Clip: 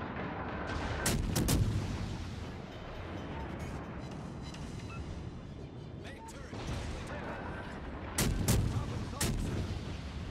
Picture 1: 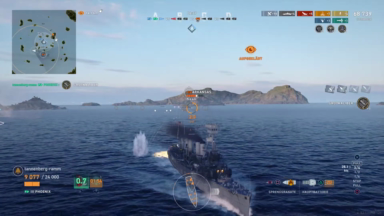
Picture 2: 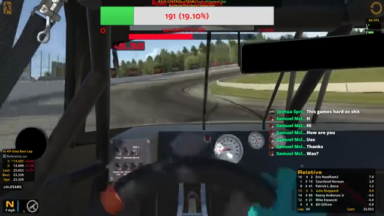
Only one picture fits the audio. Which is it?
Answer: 1